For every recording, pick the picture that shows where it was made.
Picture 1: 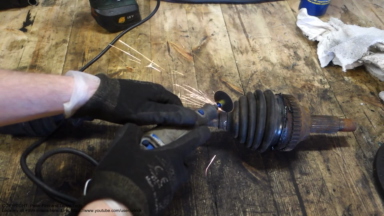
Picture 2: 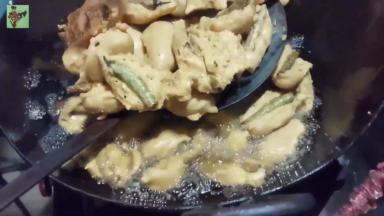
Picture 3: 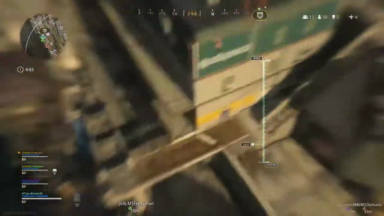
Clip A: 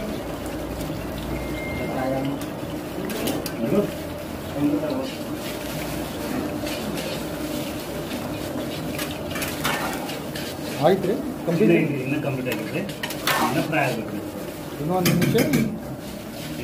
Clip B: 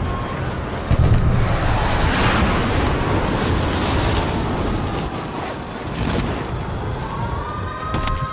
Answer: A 2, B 3